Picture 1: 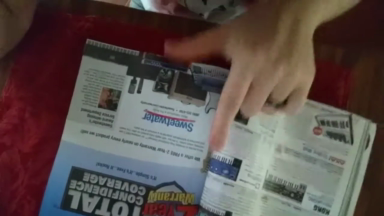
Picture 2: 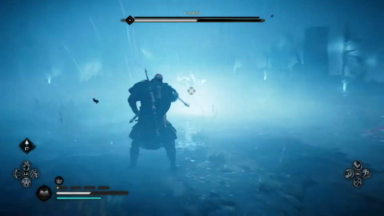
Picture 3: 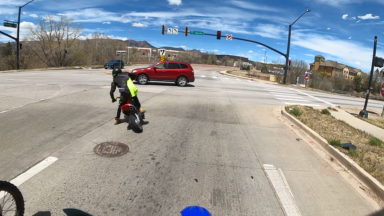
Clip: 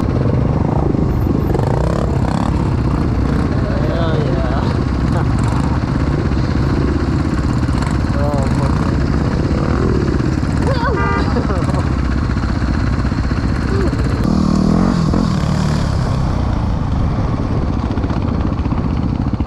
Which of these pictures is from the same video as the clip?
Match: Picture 3